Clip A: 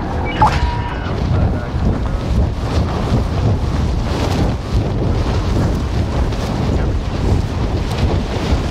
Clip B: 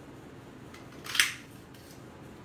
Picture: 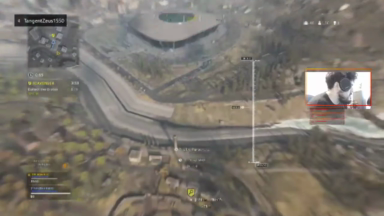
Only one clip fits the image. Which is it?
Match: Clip A